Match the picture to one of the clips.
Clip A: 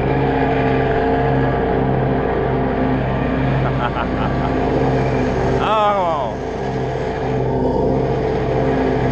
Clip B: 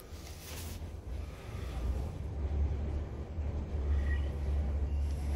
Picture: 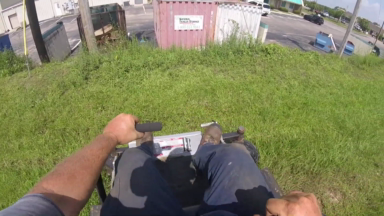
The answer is A